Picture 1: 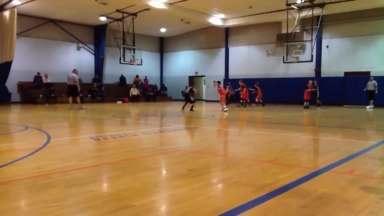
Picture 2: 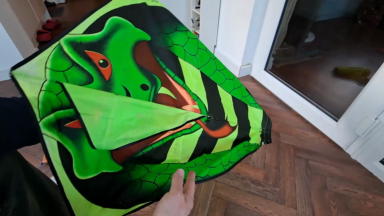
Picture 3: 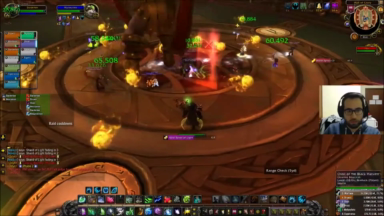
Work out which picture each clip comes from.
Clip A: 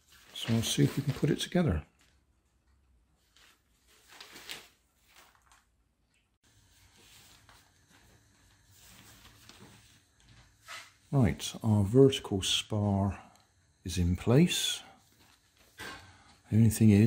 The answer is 2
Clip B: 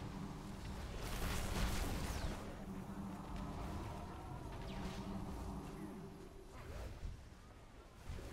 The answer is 3